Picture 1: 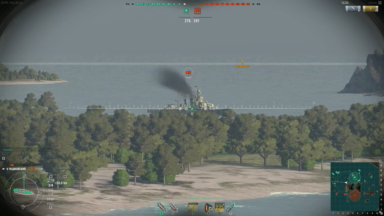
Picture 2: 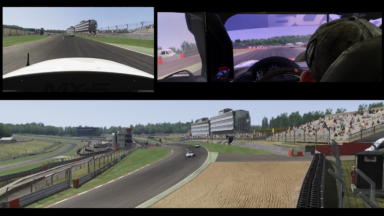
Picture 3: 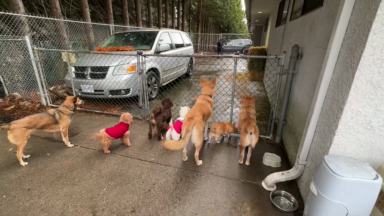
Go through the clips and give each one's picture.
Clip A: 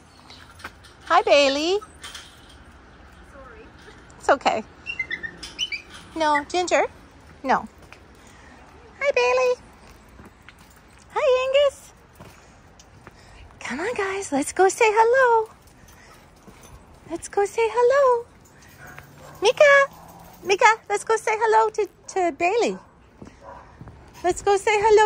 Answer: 3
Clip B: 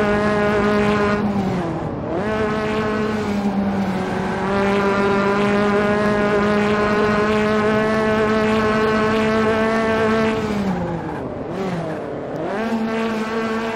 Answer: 2